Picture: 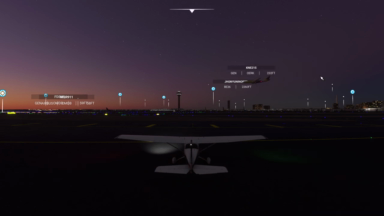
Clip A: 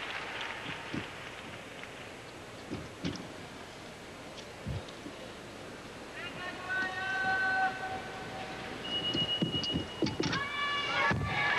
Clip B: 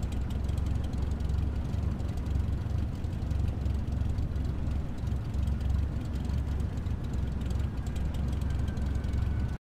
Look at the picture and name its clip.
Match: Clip B